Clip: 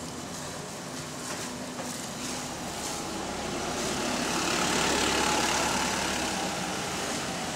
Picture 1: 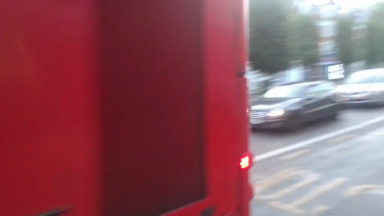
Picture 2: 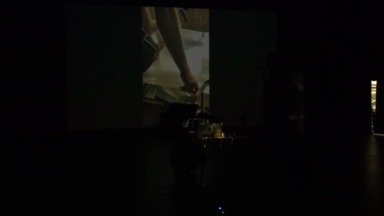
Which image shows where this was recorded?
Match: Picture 1